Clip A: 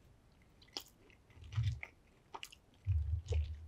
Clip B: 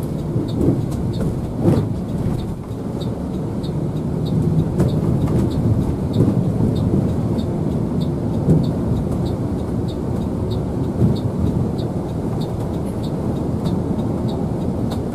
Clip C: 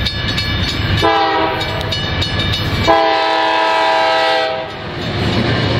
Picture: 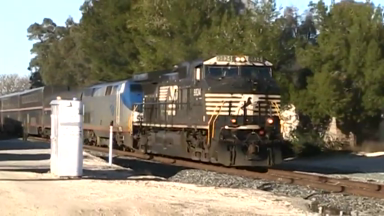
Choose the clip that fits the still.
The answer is C